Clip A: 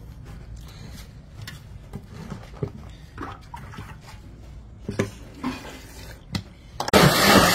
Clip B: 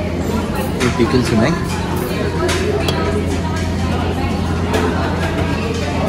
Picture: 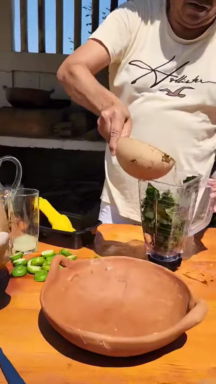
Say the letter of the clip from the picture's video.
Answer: A